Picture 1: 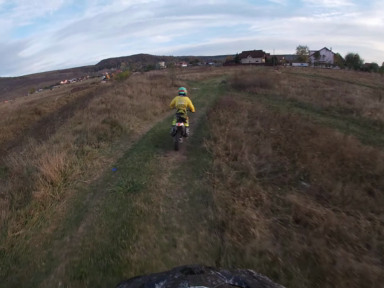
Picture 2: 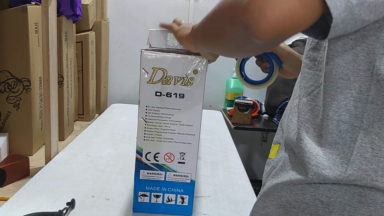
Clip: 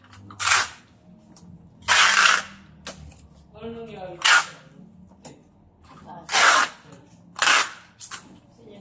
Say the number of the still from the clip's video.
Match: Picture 2